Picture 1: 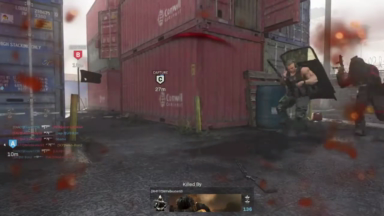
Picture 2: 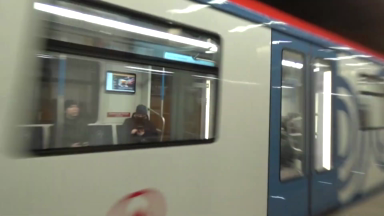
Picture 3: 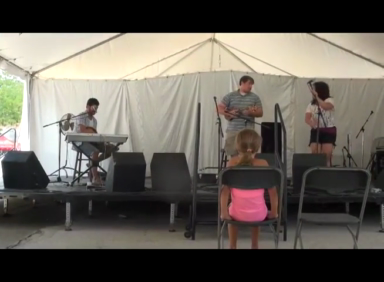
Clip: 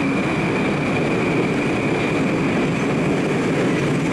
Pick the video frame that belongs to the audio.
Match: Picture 2